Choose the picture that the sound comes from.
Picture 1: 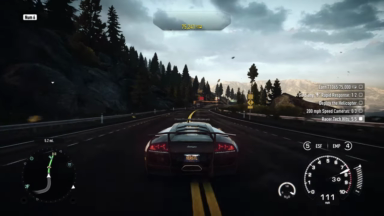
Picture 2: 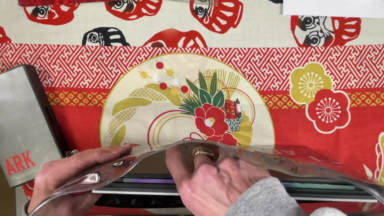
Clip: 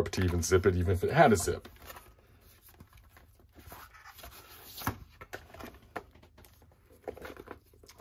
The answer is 2